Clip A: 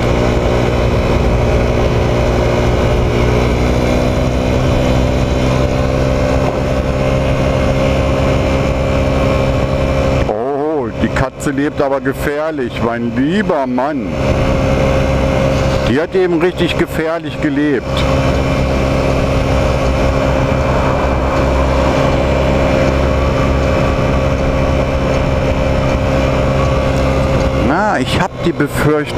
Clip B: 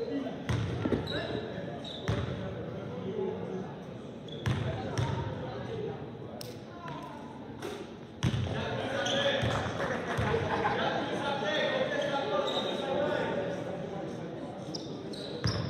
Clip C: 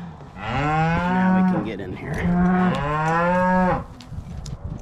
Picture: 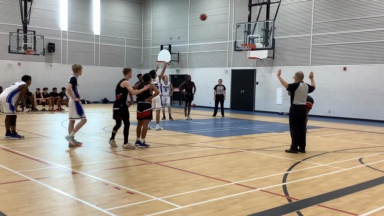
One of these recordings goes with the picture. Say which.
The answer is B